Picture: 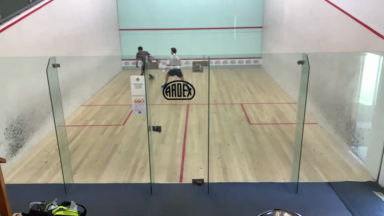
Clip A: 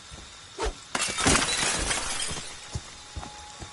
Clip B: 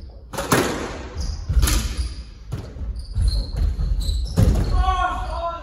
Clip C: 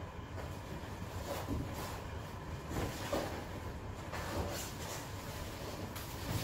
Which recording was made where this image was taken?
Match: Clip B